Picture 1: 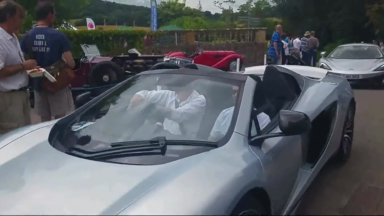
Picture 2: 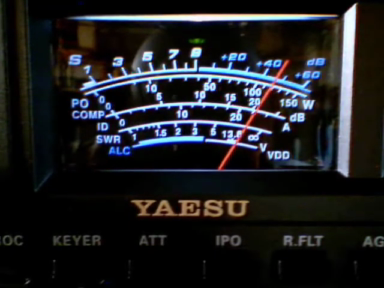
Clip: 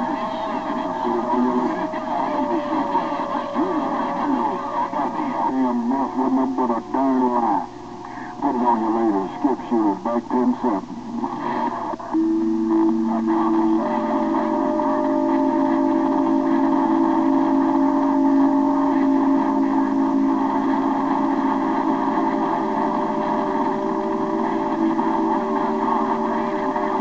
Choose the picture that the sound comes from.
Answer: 2